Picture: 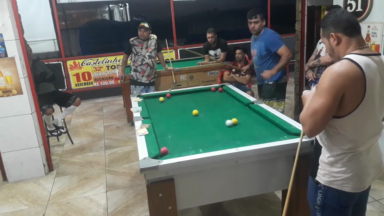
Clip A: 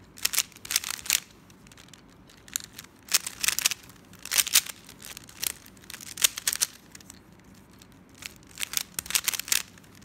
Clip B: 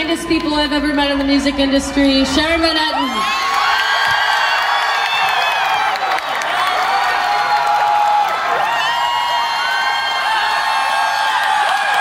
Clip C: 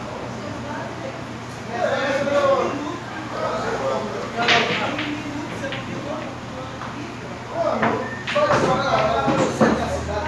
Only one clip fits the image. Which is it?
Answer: C